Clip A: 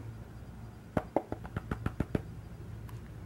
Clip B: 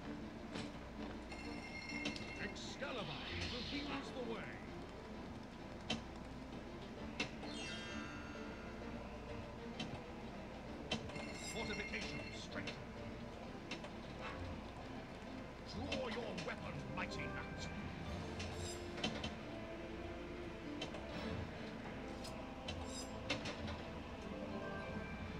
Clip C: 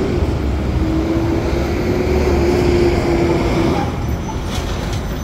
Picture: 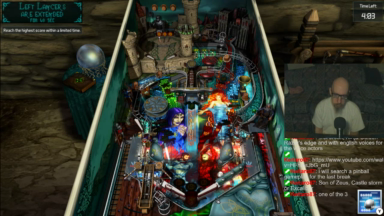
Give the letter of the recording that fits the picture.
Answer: B